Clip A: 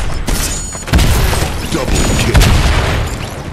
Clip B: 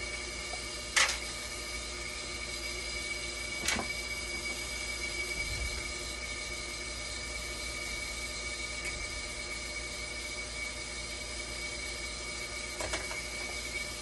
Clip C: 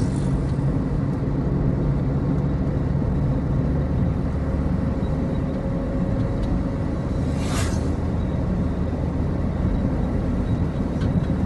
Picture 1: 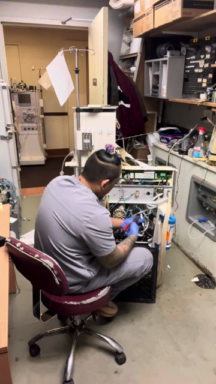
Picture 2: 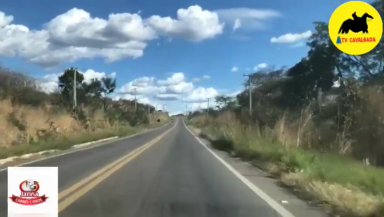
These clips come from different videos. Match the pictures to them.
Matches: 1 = B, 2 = C